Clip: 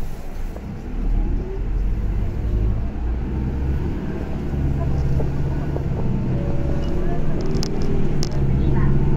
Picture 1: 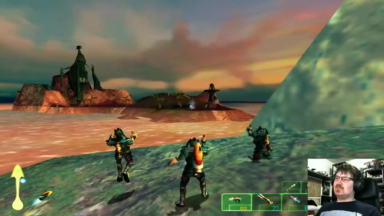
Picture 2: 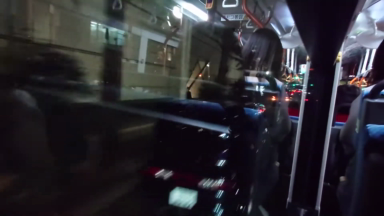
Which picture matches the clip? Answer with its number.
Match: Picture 2